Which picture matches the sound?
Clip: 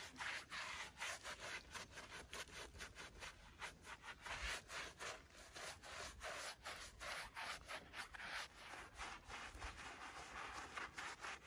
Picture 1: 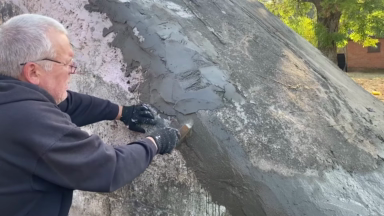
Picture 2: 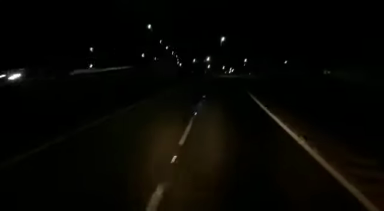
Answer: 1